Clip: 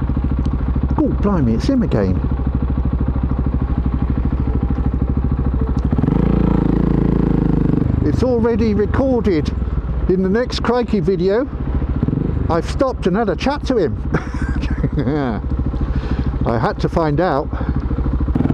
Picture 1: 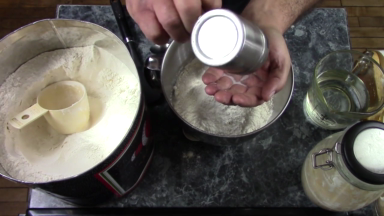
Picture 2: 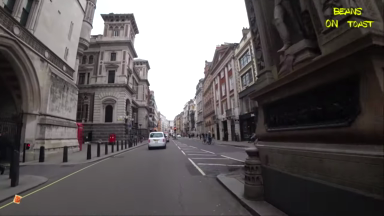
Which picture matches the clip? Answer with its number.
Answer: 2